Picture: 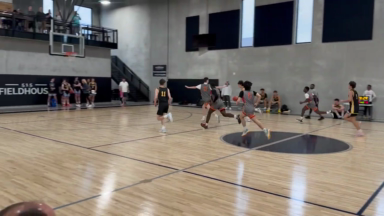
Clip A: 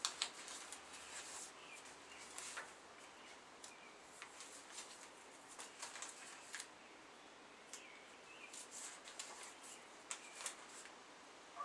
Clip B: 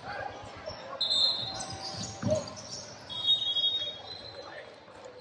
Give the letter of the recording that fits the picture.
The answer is B